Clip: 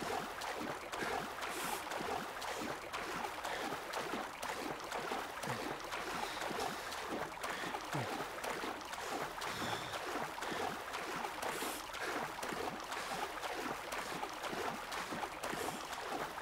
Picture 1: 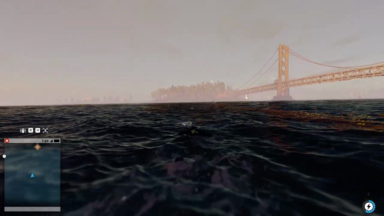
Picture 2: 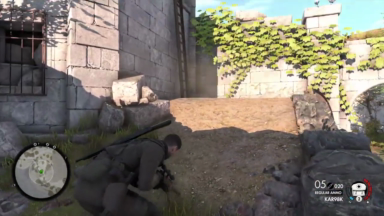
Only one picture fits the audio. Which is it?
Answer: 1